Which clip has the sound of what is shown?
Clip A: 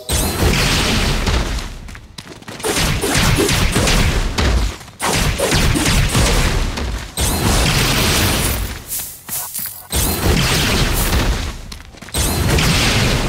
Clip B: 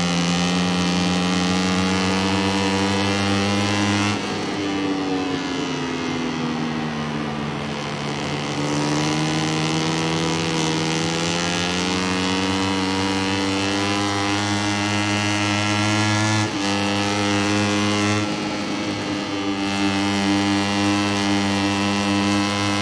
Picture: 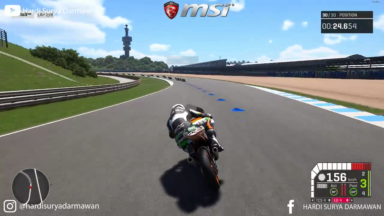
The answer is B